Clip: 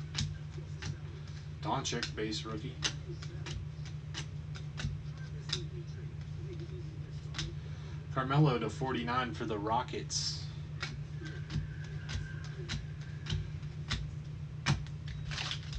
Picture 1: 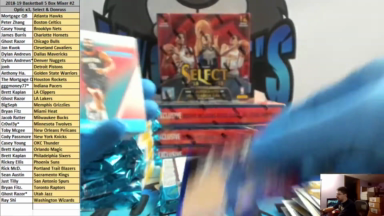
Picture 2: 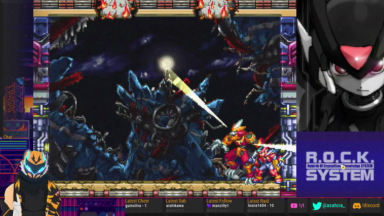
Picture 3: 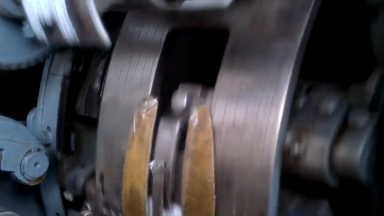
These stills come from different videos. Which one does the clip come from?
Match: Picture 1